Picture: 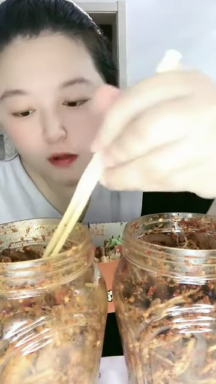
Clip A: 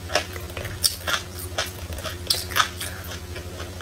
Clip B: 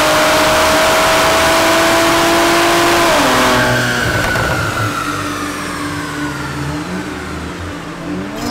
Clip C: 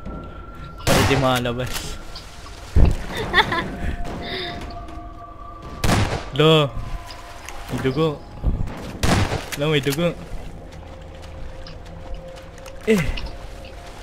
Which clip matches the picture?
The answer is A